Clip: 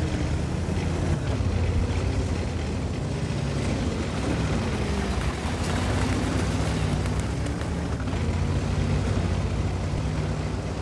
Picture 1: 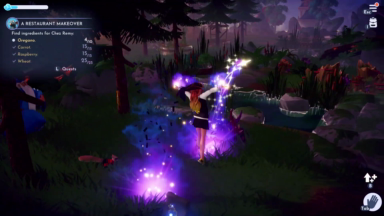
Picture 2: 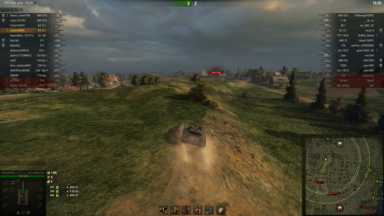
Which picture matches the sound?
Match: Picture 2